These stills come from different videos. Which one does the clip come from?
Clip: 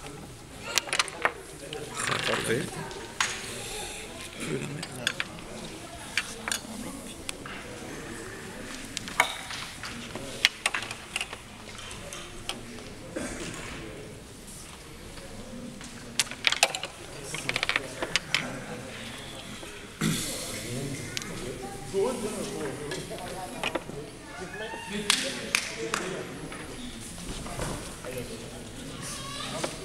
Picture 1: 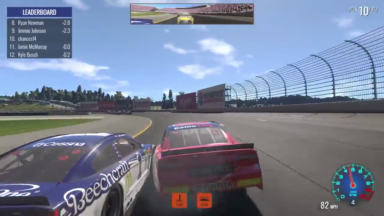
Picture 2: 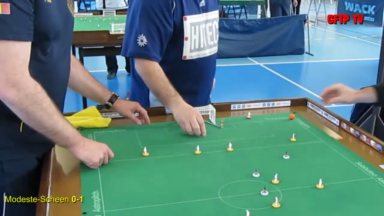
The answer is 2